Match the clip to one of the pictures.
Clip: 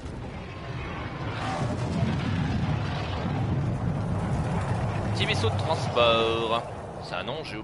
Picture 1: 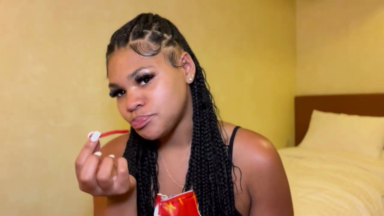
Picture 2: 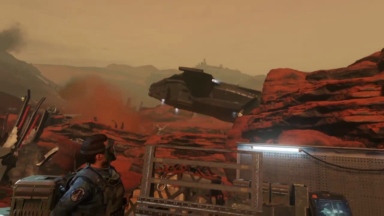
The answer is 2